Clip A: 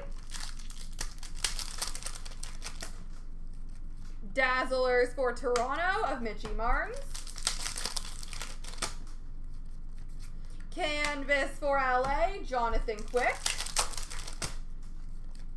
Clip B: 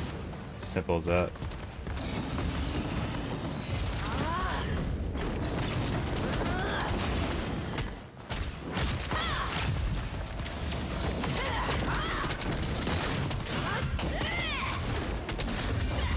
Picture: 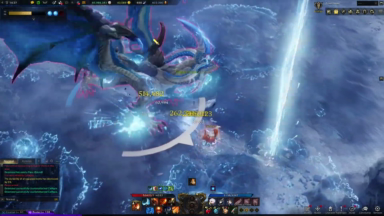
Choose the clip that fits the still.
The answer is B